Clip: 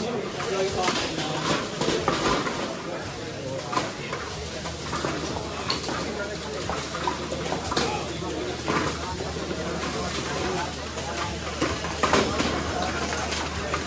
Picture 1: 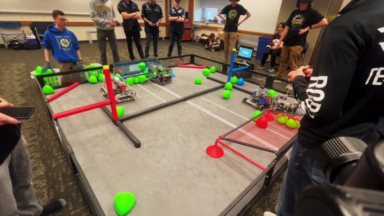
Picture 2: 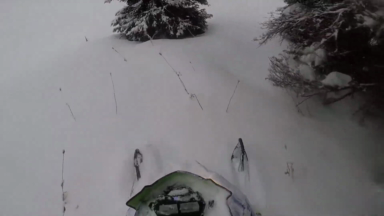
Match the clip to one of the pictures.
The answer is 1